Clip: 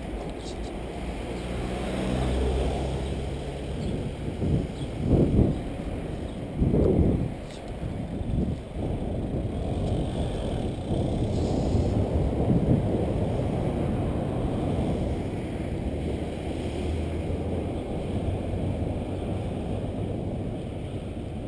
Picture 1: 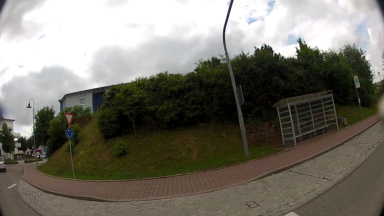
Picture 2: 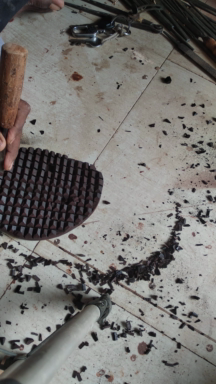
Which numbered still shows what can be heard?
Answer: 1